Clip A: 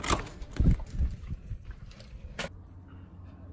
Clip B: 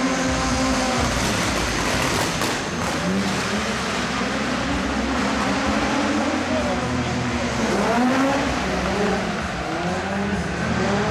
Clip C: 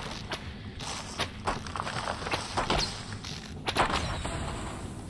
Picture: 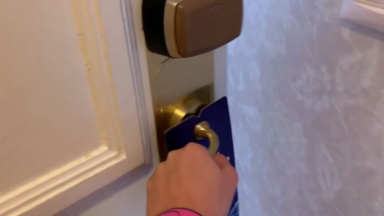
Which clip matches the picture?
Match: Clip A